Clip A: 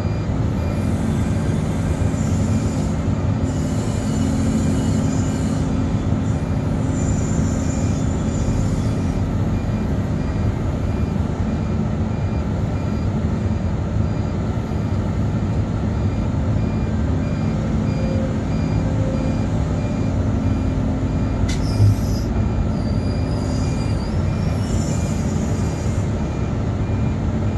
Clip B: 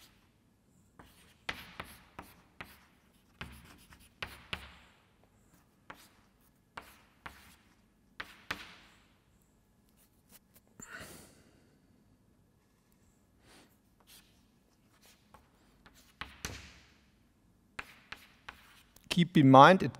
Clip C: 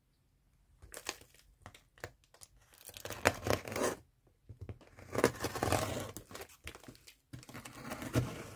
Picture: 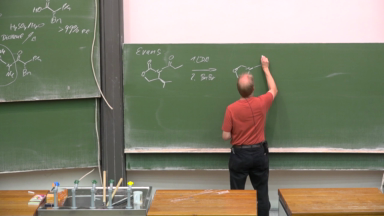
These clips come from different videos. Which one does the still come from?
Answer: B